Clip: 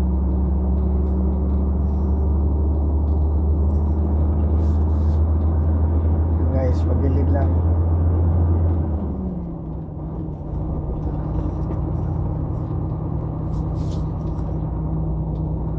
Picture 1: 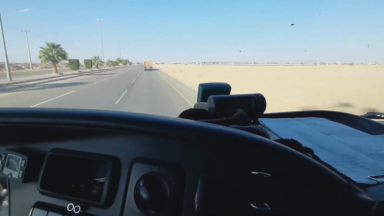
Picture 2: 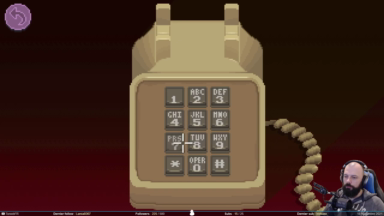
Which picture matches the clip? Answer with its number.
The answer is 1